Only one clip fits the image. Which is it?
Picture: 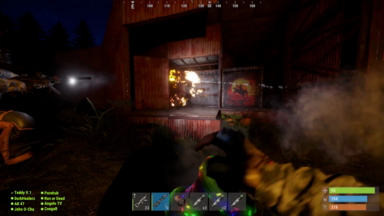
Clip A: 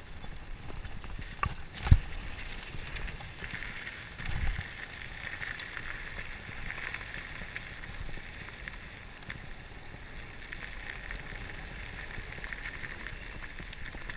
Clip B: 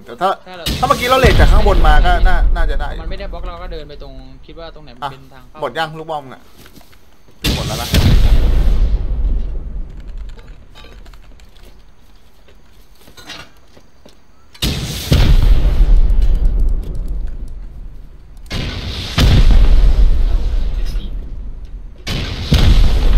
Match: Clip B